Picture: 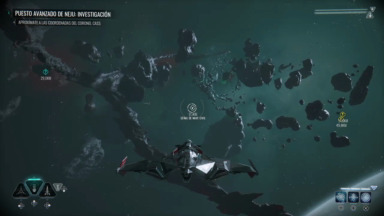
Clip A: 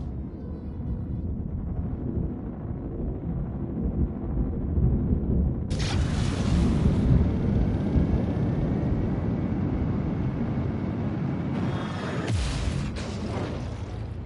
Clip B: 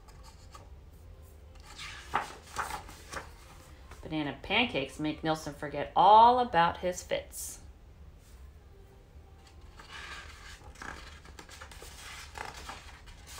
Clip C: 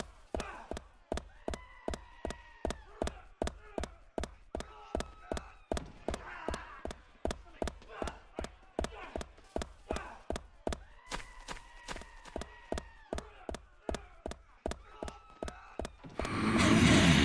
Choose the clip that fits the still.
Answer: A